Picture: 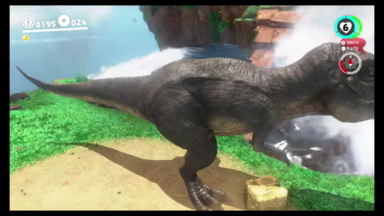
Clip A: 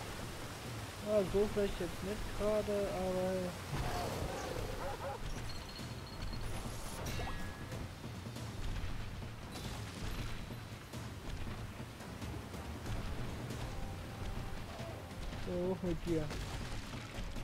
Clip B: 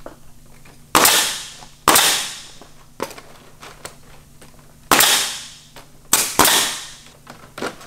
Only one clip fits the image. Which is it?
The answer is A